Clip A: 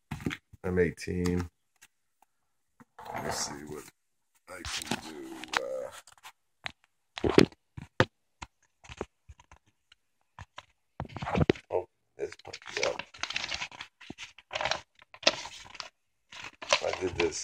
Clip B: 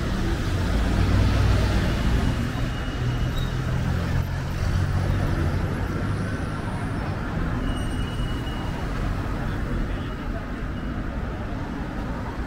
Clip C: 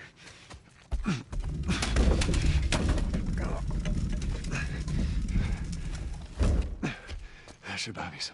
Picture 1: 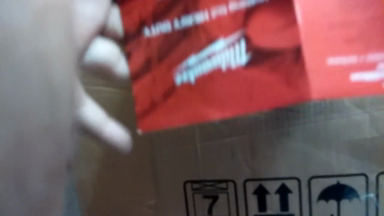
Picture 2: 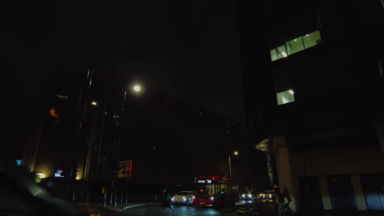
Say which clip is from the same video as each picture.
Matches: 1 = A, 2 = B